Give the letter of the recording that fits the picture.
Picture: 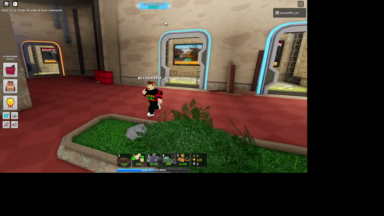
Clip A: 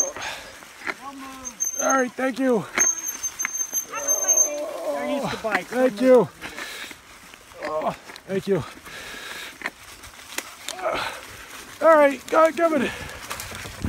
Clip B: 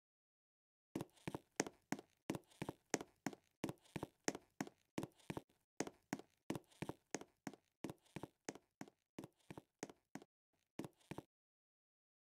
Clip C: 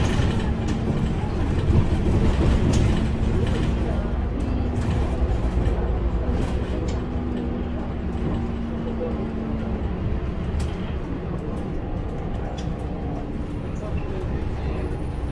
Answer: B